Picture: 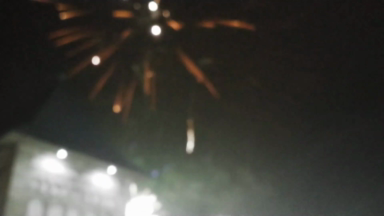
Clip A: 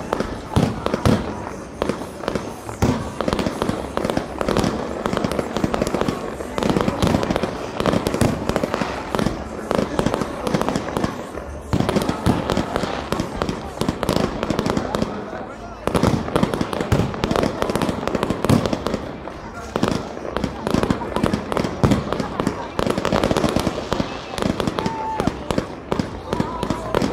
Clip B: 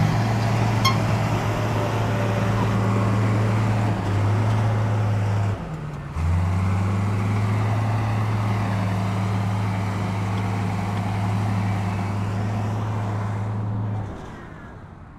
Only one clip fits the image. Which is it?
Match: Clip A